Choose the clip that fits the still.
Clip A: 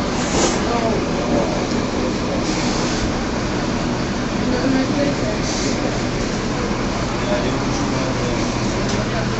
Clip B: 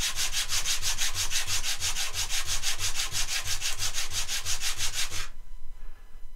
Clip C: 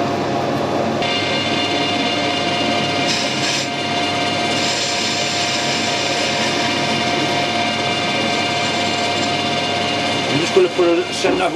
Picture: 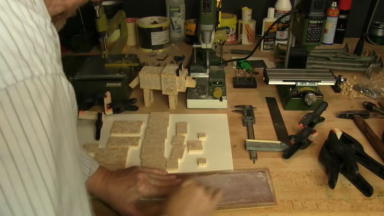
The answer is B